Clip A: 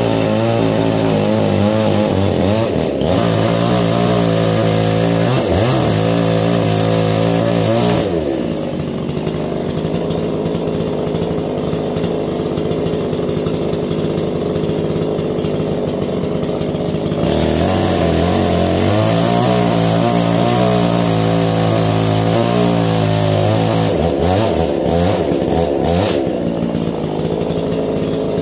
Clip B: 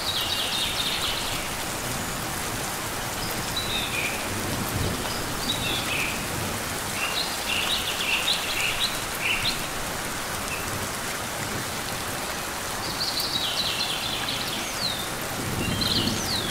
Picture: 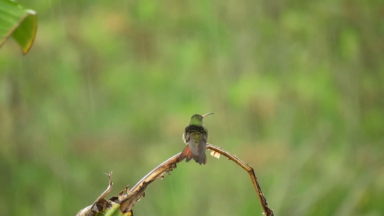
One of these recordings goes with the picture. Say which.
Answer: B